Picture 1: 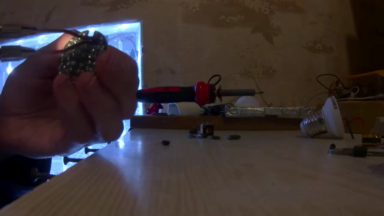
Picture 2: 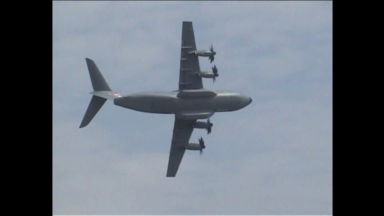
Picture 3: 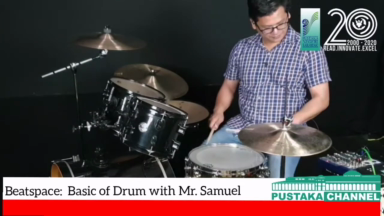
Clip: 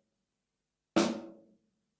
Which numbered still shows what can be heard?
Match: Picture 3